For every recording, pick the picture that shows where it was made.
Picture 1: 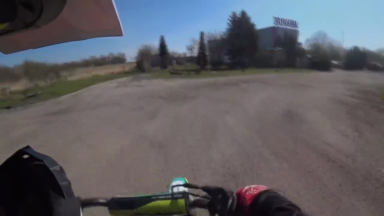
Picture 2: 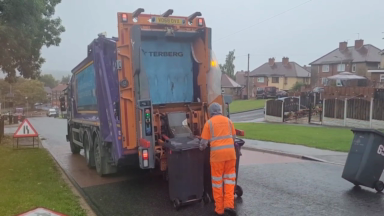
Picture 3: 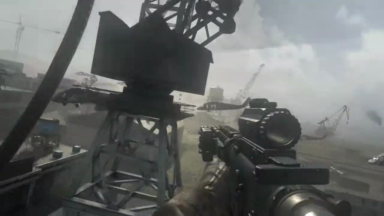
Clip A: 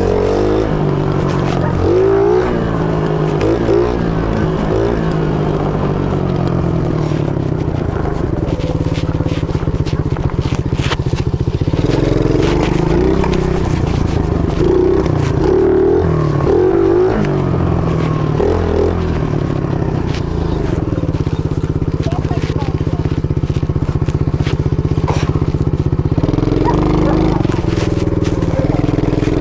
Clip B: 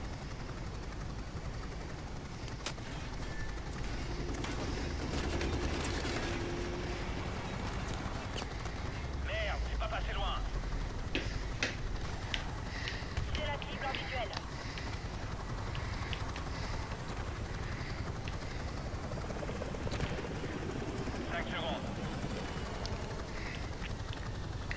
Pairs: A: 1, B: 3